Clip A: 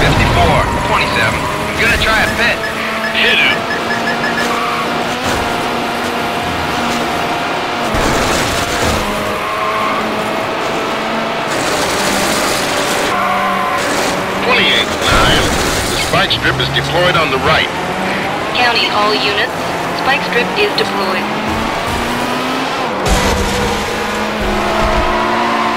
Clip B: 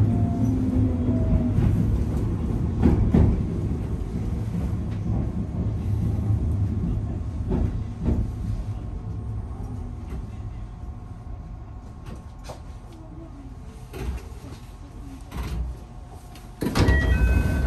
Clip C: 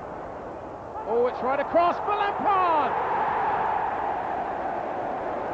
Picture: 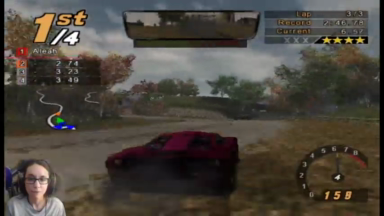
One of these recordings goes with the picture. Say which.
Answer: A